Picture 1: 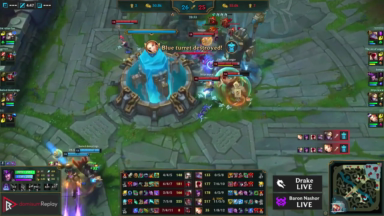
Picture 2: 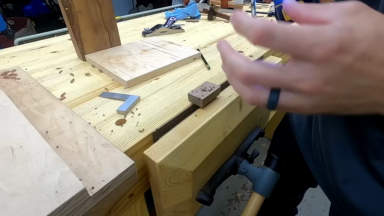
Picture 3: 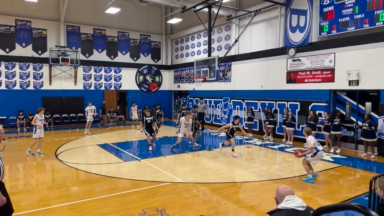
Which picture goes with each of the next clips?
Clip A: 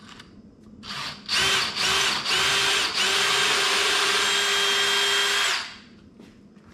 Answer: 2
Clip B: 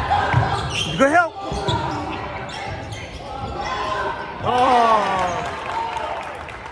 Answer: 3